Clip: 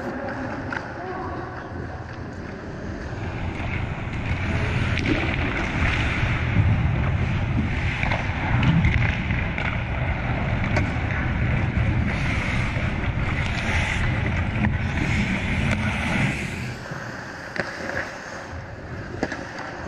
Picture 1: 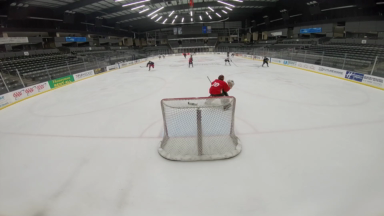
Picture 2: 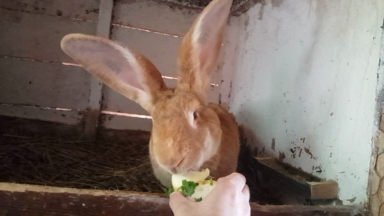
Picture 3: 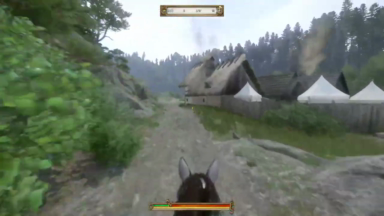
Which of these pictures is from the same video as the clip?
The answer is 1